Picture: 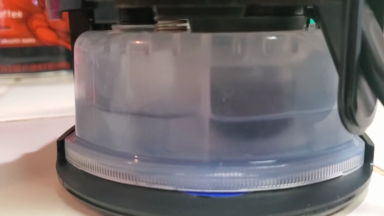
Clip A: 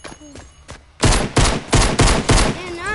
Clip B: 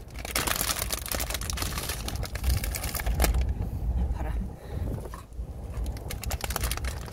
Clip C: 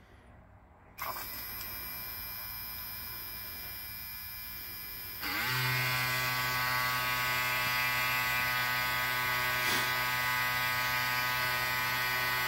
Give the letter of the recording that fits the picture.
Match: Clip C